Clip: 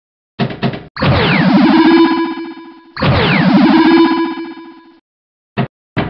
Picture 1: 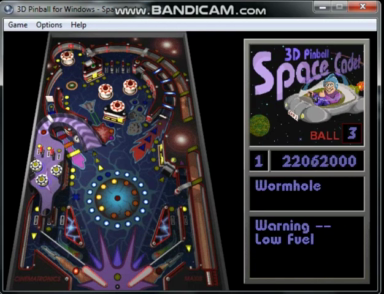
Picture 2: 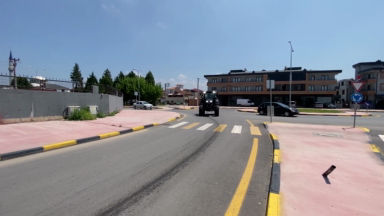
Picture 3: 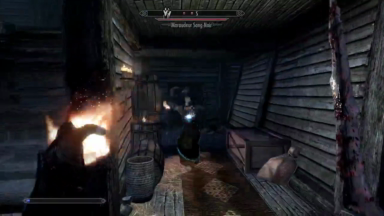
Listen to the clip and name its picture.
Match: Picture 1